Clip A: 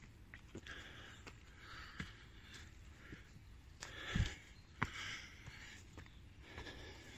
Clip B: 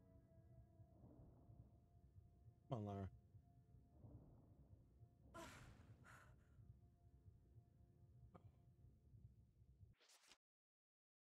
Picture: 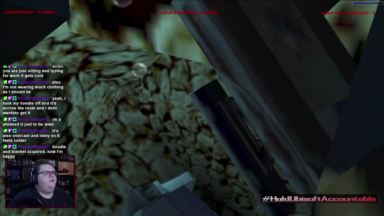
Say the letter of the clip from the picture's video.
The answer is B